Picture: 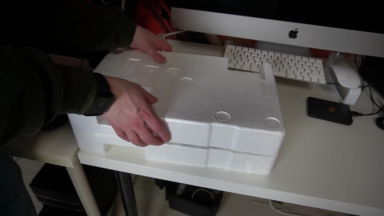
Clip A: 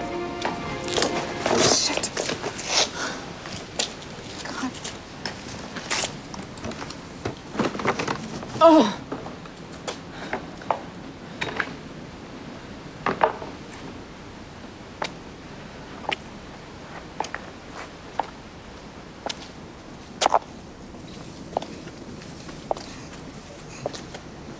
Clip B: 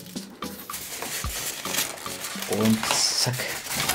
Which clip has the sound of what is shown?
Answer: B